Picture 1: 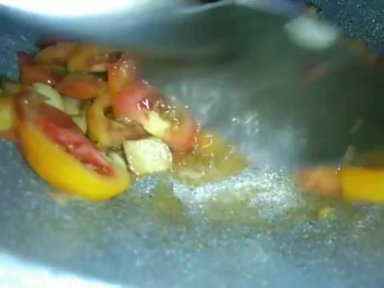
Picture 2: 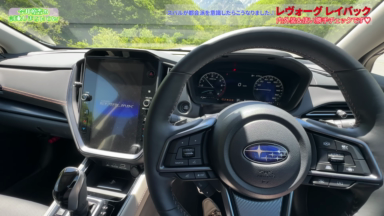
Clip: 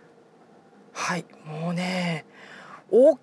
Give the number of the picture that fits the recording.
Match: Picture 2